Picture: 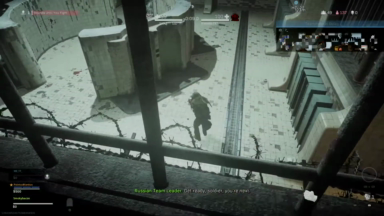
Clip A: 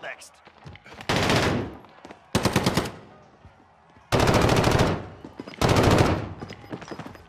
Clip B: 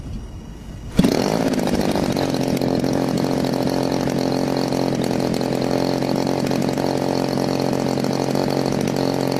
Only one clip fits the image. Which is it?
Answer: A